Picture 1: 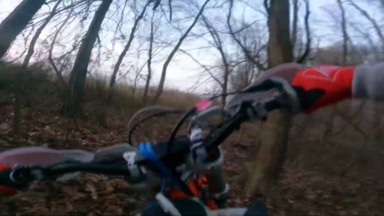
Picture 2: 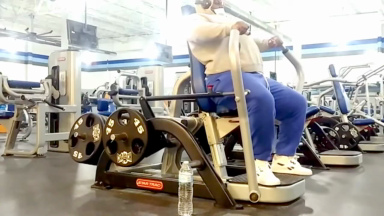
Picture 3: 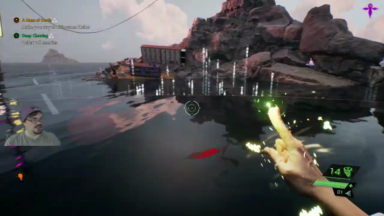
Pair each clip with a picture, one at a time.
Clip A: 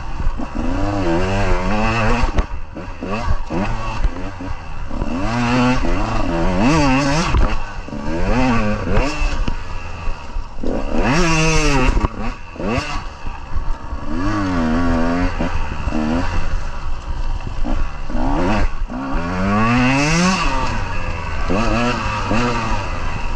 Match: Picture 1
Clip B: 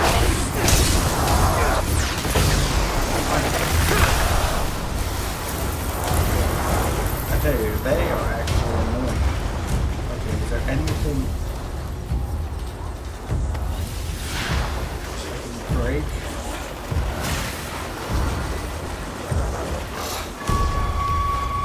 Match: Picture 3